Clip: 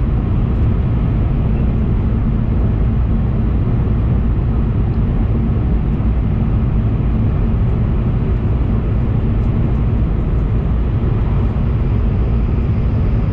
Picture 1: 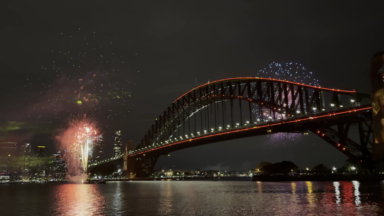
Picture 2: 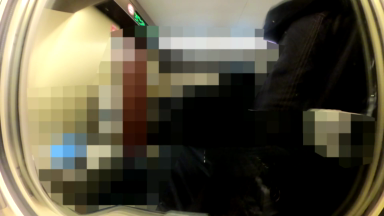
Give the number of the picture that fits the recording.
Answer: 2